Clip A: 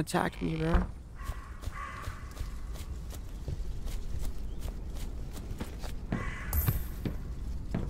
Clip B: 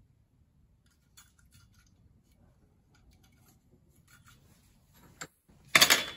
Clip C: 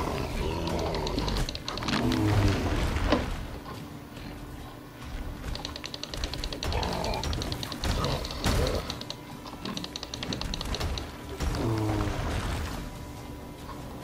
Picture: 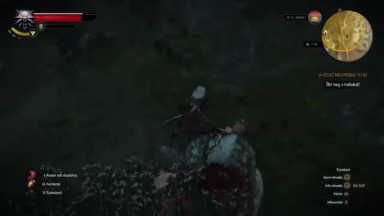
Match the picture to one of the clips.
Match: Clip C